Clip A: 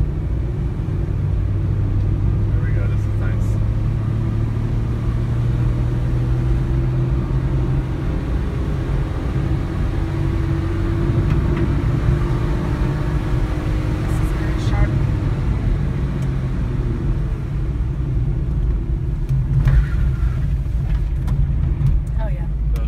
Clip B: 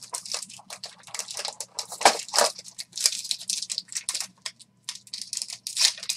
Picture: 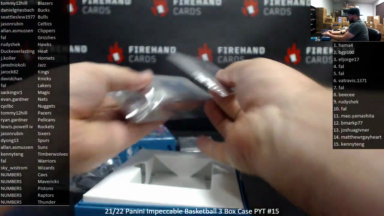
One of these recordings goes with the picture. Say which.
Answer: B